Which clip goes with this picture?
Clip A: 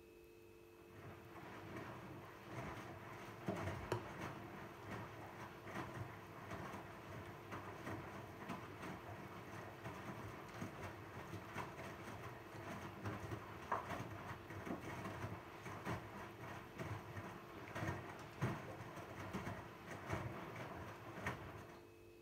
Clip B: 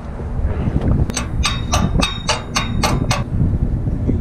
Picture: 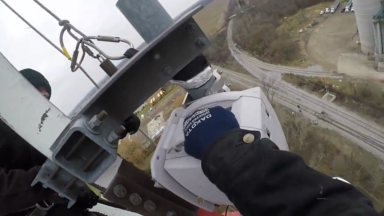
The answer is B